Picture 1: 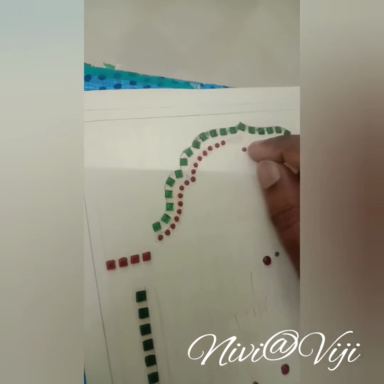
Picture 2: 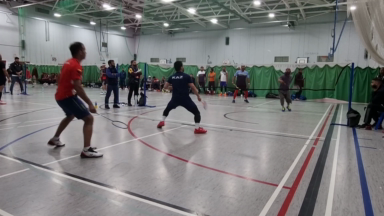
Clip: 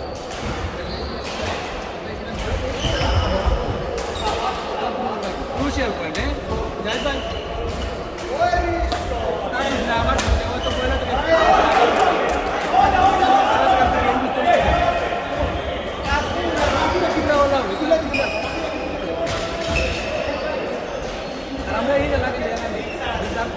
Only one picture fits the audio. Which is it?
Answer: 2